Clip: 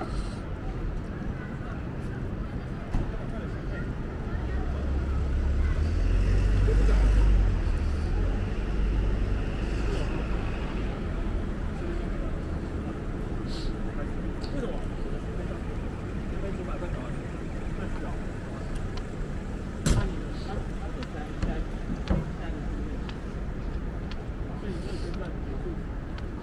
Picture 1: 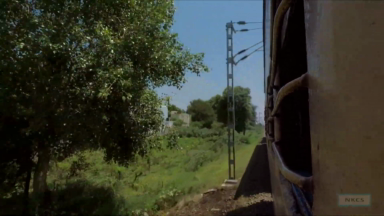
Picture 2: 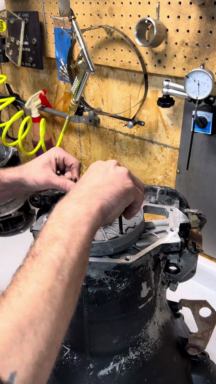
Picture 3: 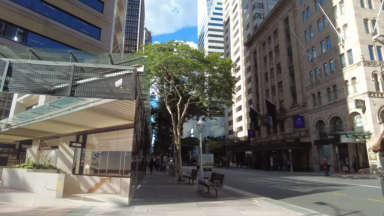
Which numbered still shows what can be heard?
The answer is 3